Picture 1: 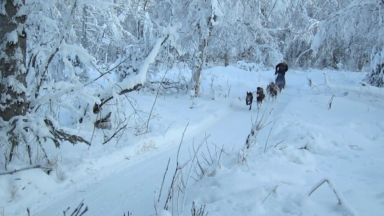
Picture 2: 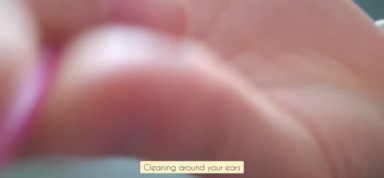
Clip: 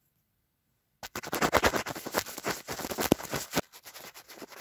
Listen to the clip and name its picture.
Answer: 2